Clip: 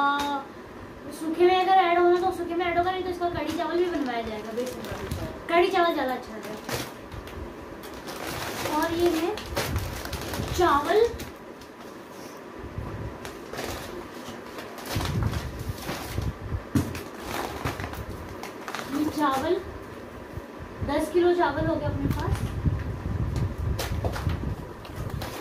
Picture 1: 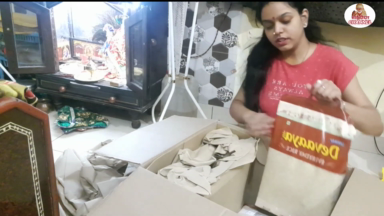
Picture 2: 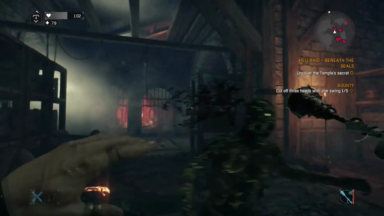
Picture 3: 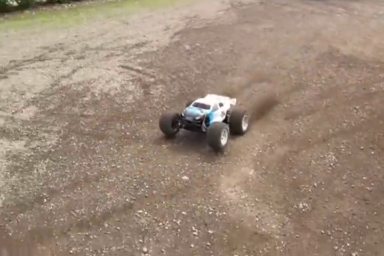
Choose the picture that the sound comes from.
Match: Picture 1